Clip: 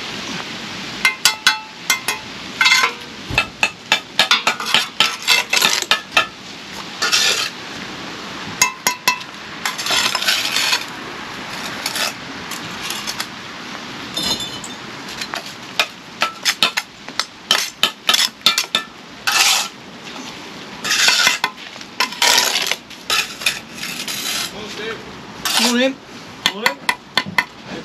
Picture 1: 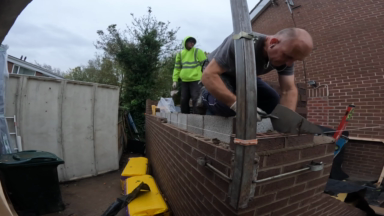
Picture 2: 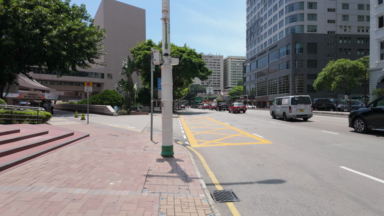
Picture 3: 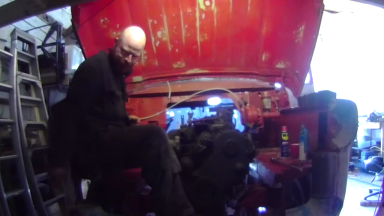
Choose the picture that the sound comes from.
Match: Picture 1